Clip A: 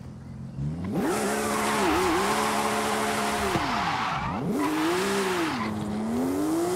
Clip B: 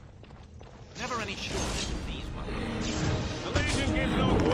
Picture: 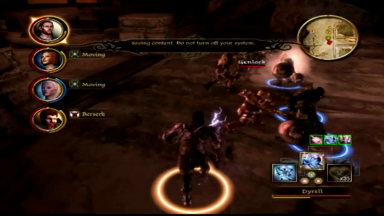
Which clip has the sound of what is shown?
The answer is B